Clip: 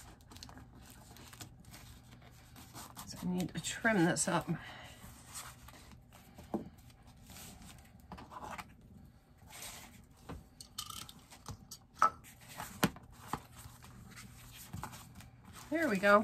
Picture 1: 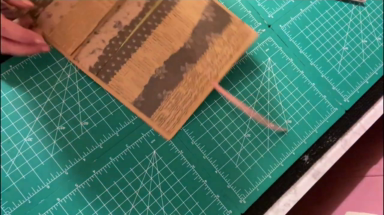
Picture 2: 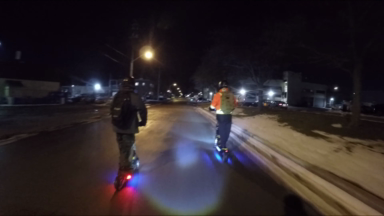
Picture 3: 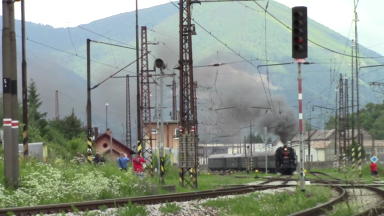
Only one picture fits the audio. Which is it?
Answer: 1